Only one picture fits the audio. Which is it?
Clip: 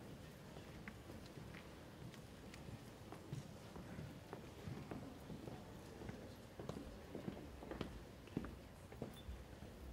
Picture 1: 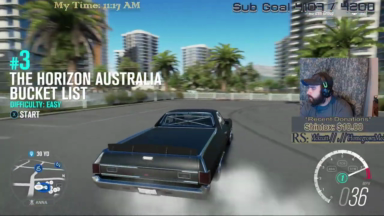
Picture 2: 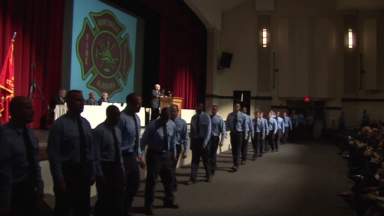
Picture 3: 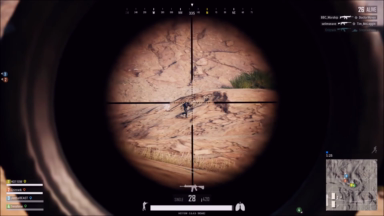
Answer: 2